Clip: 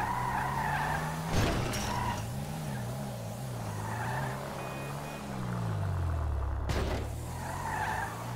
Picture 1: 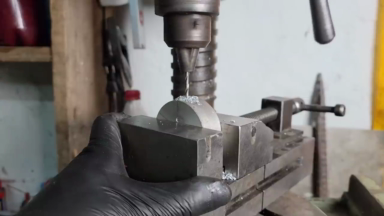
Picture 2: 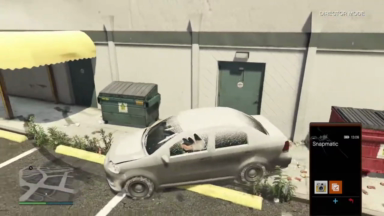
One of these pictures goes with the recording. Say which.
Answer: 2